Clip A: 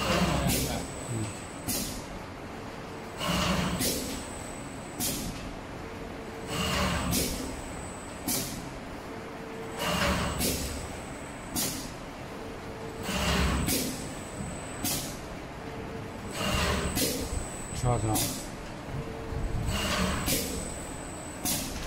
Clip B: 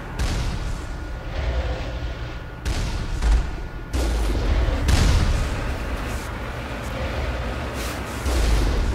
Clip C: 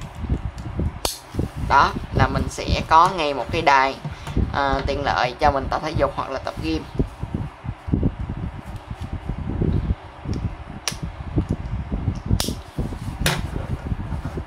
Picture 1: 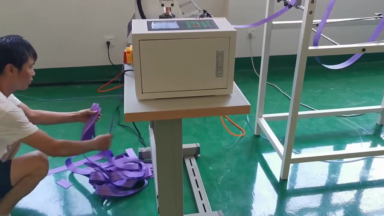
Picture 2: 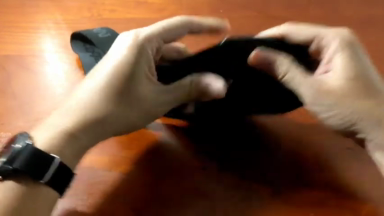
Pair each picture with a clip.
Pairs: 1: A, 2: C